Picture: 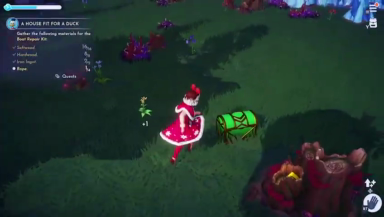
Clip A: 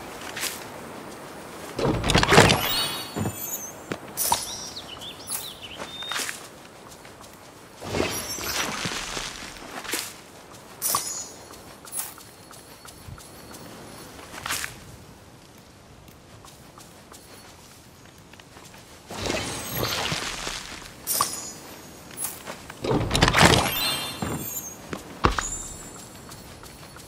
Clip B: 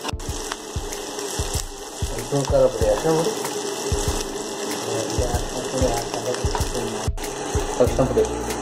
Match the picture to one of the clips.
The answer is A